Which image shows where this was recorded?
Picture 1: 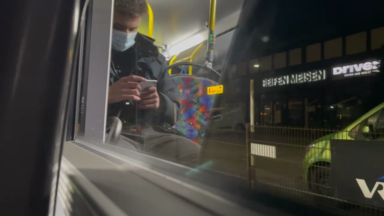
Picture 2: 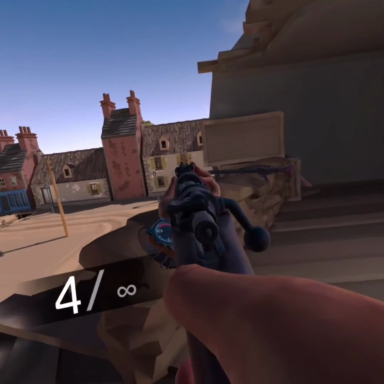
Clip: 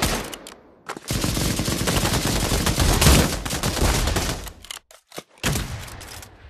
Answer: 2